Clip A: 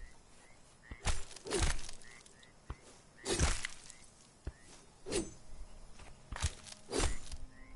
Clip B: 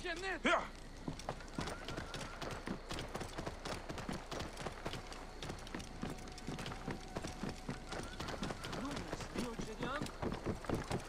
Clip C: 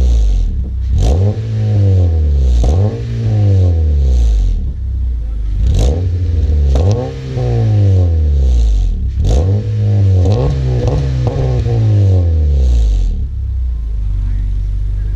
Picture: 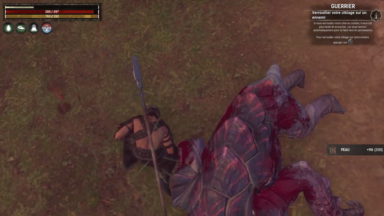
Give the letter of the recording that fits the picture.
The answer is A